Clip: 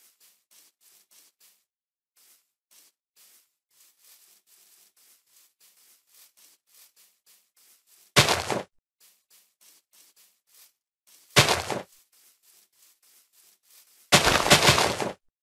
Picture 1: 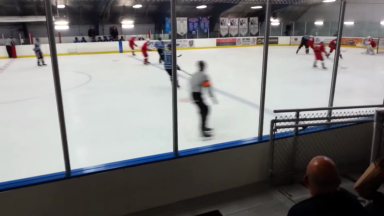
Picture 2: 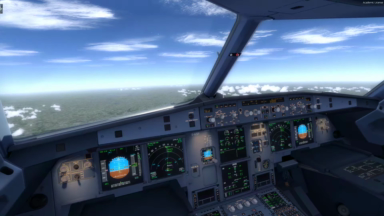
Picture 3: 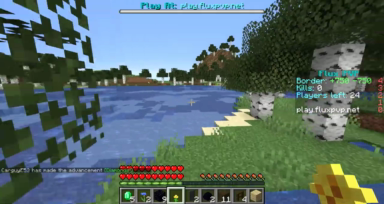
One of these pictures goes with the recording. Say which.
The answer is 3